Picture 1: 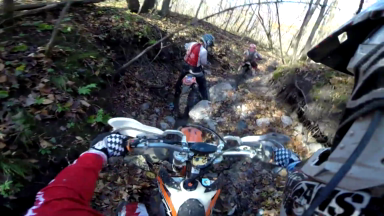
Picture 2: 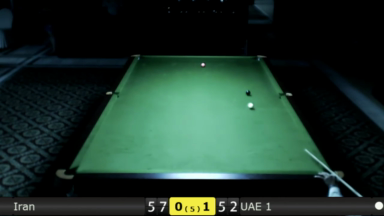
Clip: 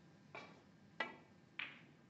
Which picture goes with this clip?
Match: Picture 2